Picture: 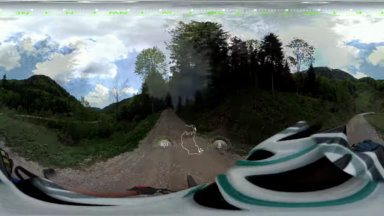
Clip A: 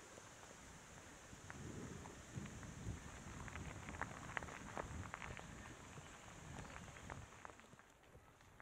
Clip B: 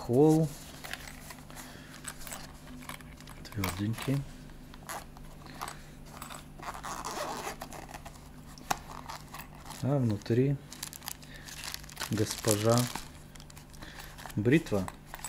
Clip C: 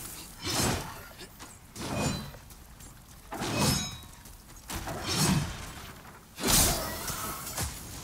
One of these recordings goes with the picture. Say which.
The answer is A